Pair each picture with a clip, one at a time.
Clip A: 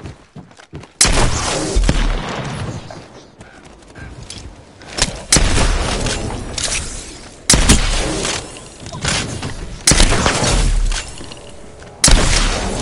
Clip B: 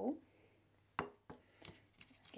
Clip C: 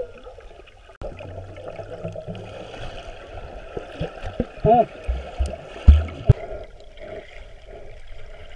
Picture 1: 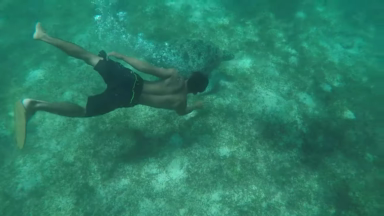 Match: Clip C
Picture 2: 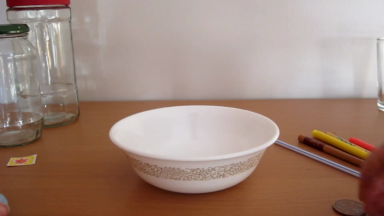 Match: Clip B